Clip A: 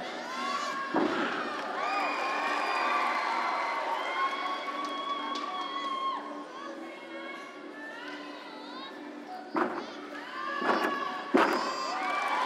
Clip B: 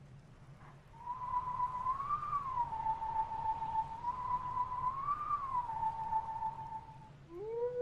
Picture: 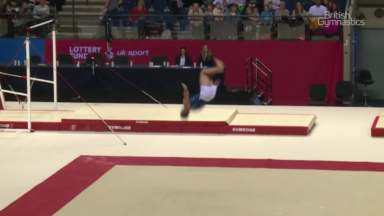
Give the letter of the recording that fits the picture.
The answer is A